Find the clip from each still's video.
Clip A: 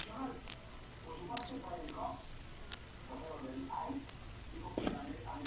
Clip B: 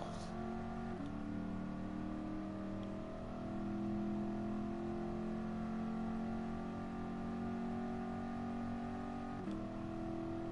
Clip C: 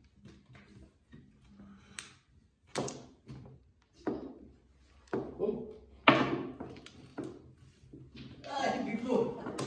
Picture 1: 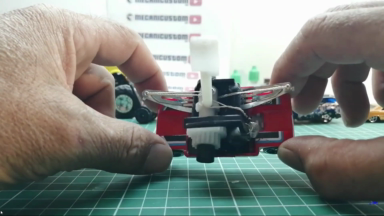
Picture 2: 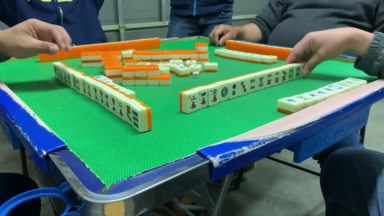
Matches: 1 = A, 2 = C